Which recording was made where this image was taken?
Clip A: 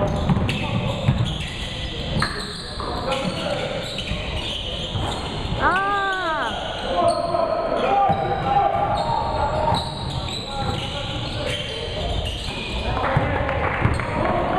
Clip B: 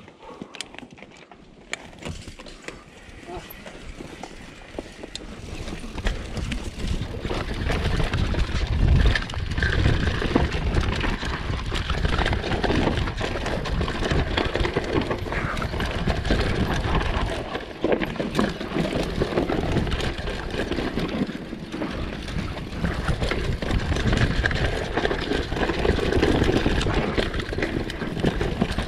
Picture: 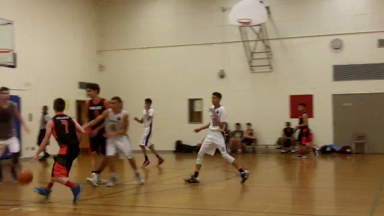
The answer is A